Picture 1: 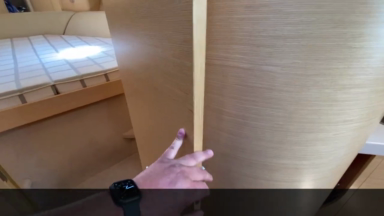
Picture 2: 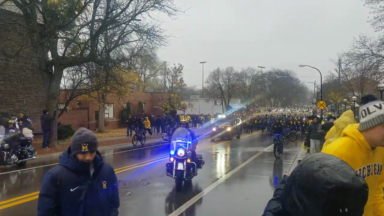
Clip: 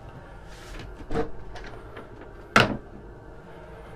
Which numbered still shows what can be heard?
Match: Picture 1